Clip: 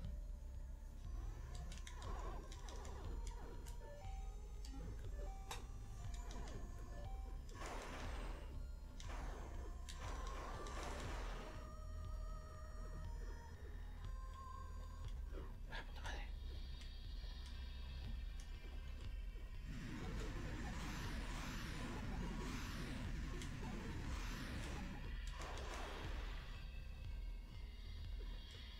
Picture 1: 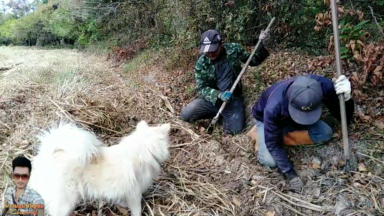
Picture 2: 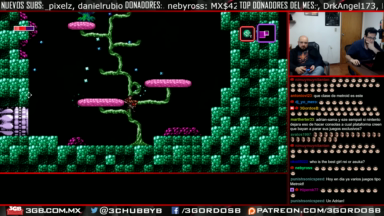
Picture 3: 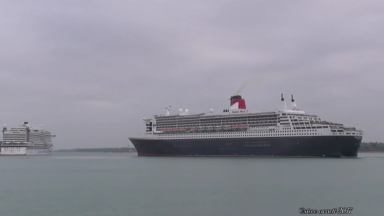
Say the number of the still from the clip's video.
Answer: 2